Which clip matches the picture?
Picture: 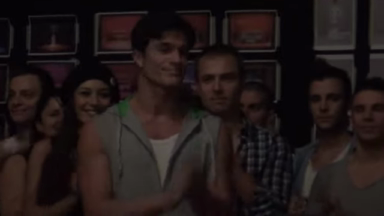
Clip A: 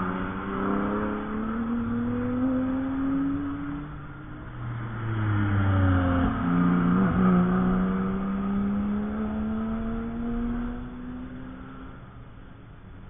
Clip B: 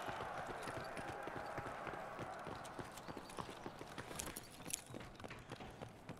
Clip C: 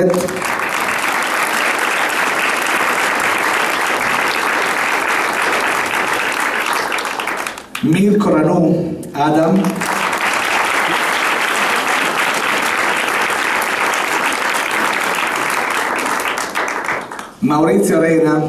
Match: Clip C